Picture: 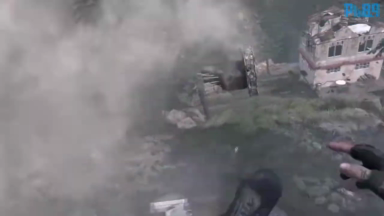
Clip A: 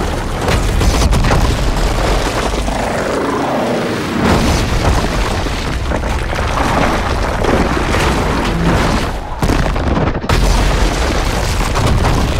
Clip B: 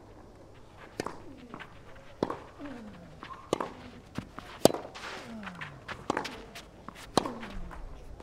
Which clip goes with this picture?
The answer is A